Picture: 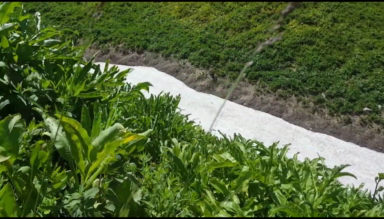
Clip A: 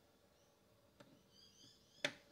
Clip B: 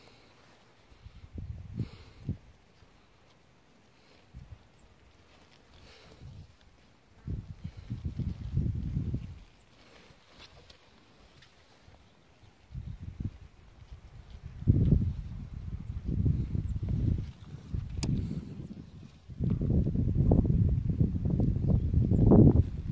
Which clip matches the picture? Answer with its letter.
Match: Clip B